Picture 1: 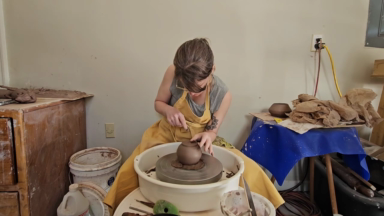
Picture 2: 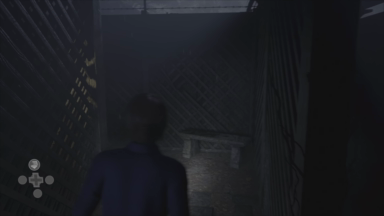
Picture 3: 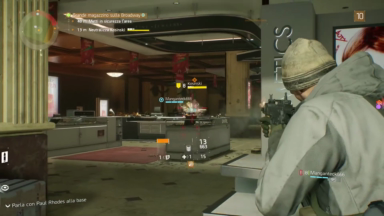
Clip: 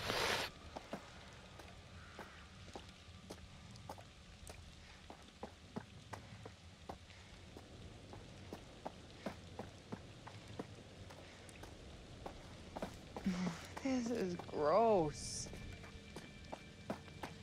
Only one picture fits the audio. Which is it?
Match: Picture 2